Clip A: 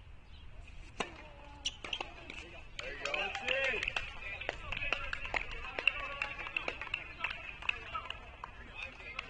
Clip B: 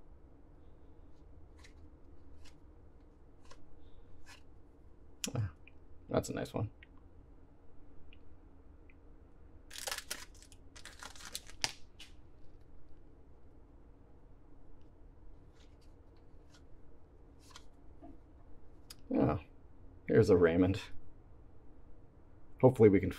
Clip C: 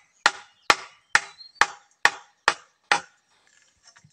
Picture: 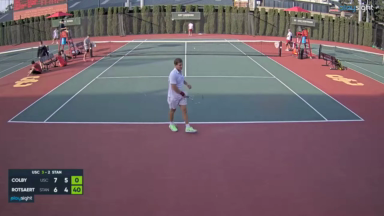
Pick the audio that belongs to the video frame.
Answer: A